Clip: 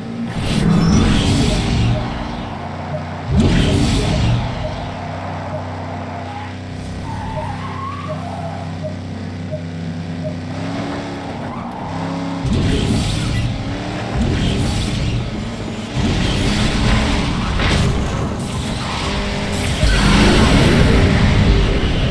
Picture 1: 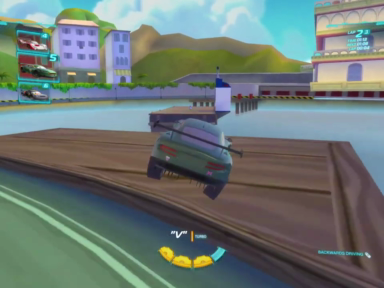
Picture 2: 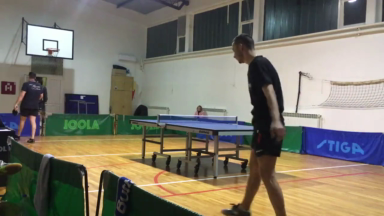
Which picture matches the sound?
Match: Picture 1